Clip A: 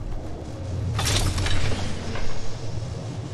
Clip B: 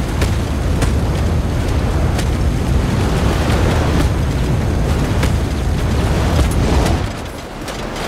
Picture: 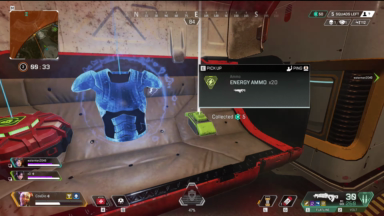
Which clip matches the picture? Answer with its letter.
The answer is A